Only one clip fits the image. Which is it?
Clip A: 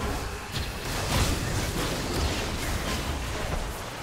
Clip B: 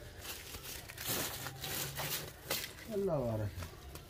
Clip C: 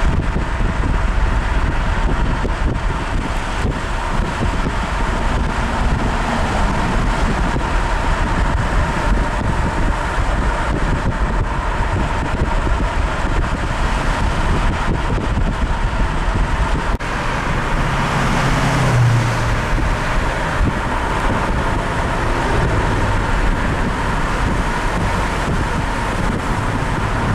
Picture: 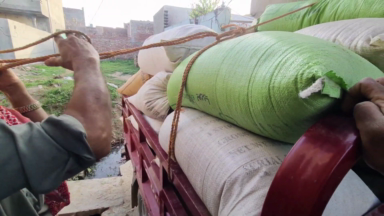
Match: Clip B